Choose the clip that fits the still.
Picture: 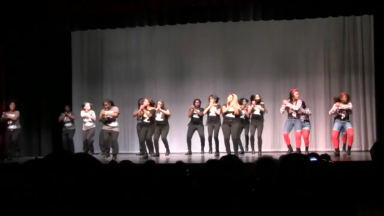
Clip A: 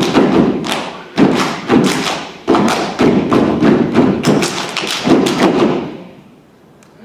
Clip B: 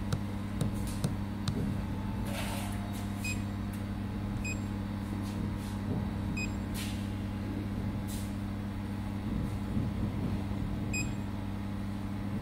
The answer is A